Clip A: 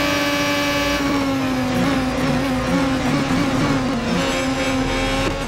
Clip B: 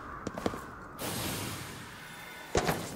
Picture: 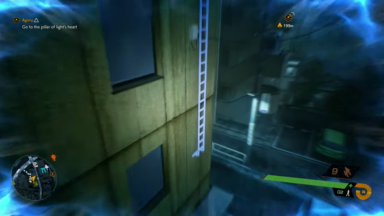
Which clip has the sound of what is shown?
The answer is B